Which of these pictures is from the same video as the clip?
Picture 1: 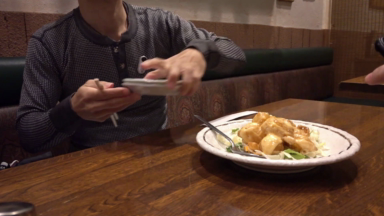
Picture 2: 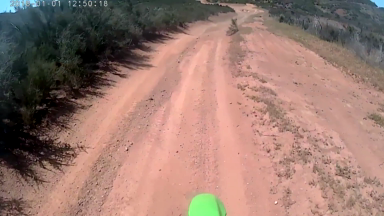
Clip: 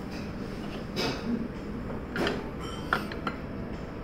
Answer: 1